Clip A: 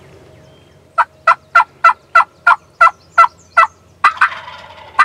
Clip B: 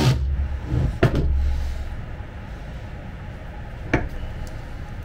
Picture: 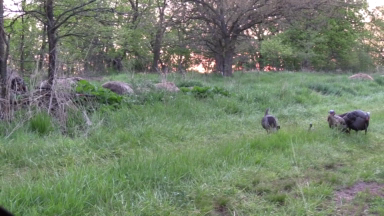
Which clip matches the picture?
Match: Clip A